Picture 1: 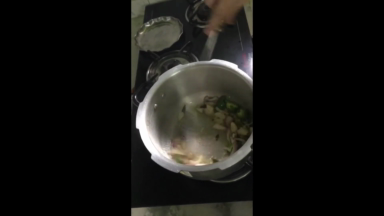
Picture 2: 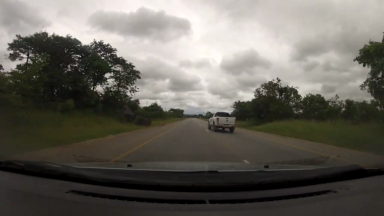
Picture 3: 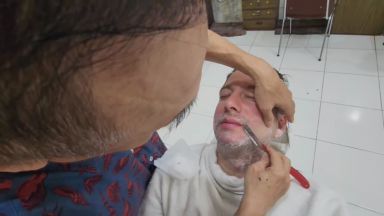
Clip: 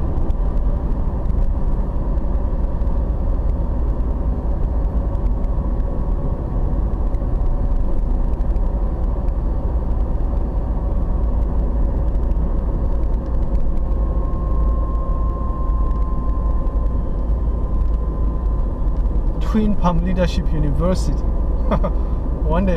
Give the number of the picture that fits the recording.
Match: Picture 2